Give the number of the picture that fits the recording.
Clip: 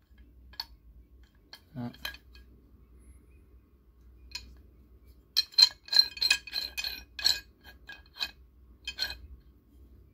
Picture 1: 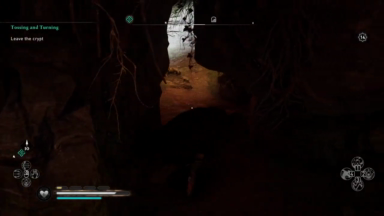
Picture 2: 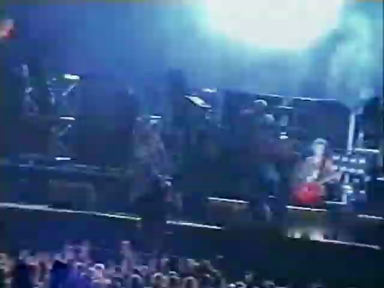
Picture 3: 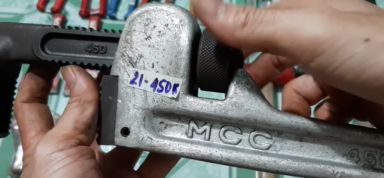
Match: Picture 3